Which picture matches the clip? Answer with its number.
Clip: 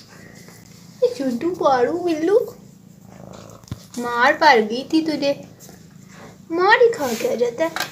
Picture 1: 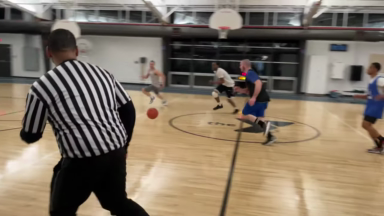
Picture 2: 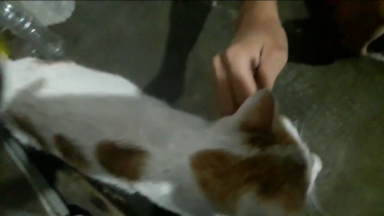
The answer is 2